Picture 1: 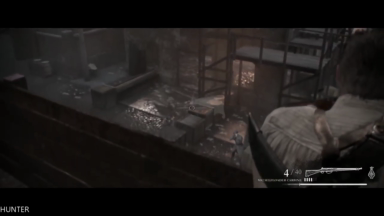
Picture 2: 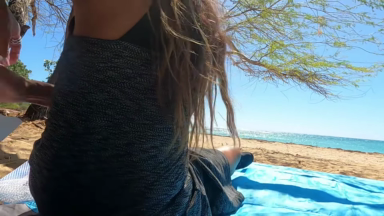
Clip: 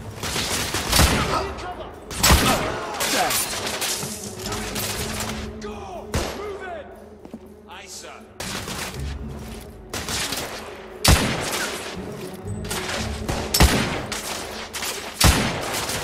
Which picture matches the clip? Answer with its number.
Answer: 1